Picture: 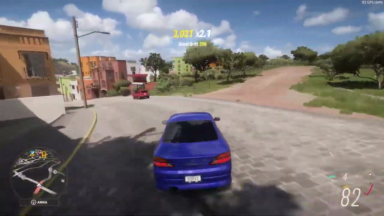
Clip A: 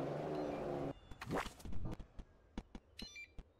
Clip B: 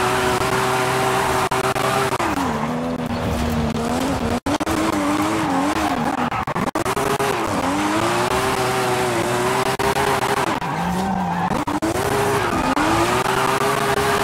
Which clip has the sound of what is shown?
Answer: B